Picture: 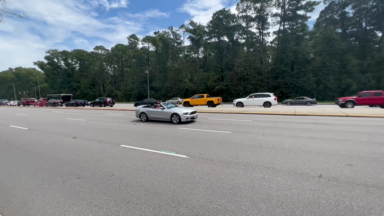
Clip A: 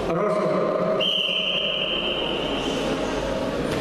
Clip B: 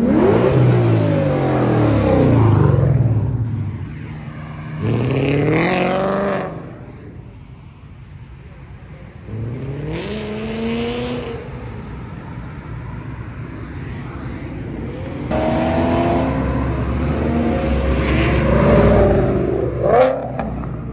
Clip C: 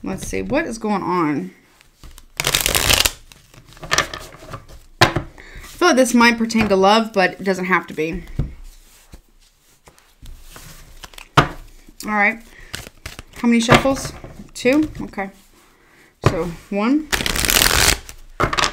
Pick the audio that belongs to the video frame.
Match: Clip B